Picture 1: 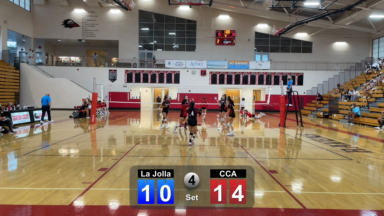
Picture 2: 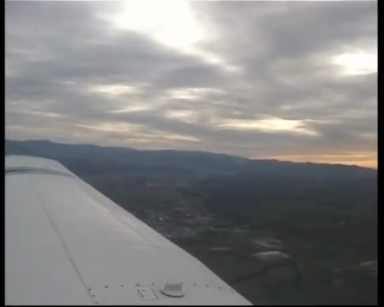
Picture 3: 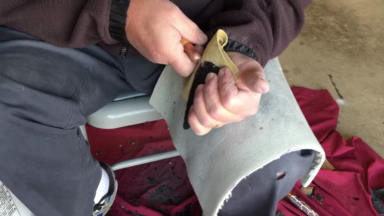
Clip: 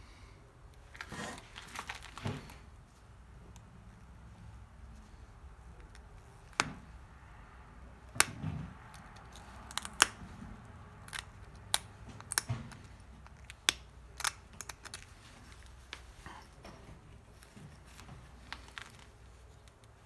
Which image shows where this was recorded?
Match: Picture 3